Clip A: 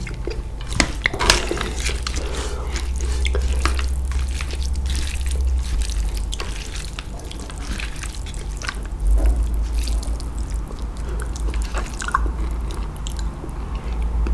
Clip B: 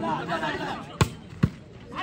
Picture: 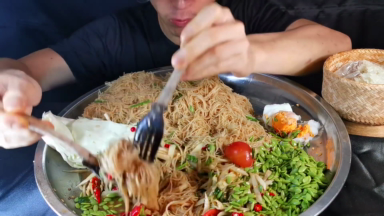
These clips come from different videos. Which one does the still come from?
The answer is A